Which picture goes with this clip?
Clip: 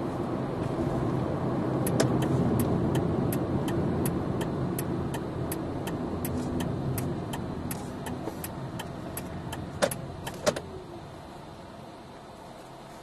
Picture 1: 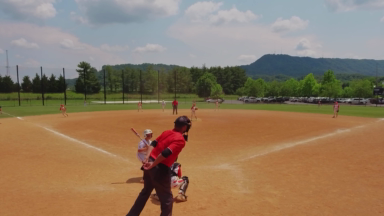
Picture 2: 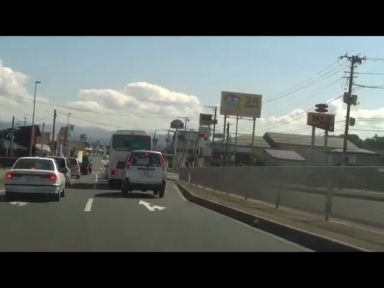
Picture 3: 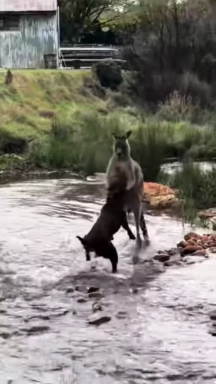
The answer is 2